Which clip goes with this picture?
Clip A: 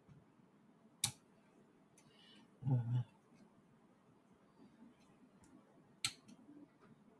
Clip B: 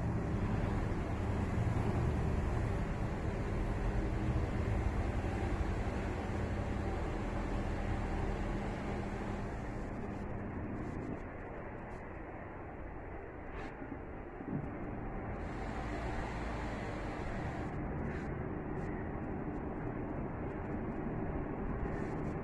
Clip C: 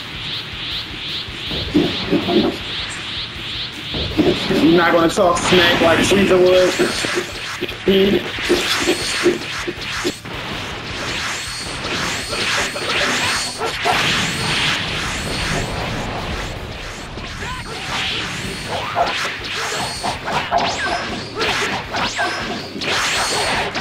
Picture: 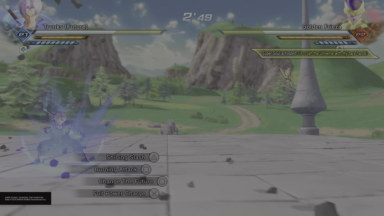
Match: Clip C